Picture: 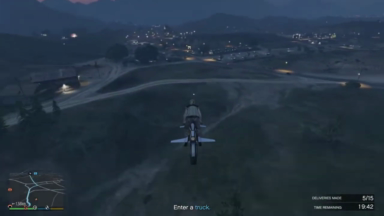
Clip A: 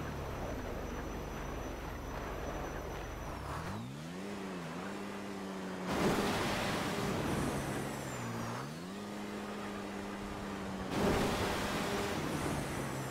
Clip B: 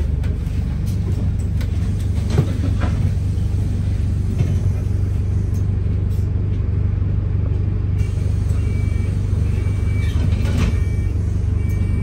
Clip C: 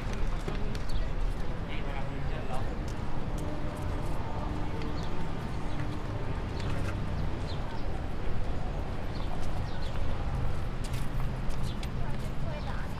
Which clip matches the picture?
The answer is A